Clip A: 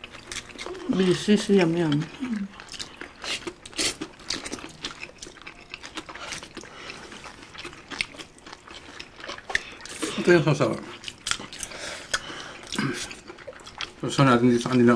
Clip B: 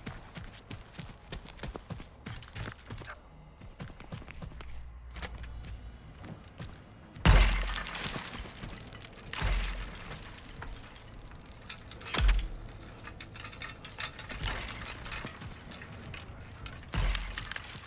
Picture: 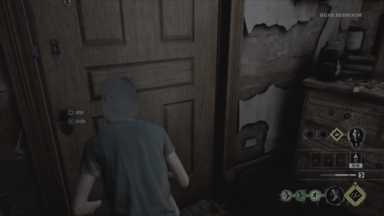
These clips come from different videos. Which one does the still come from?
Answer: B